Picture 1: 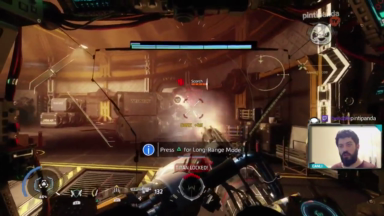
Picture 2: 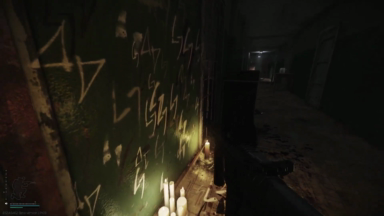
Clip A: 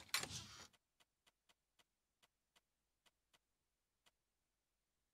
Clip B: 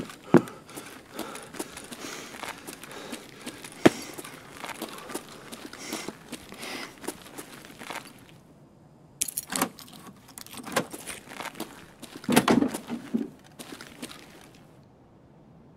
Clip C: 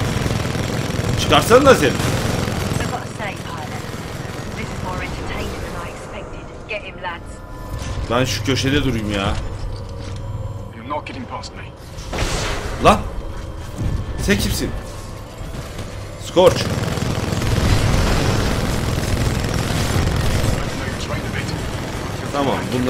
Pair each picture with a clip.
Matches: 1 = C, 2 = B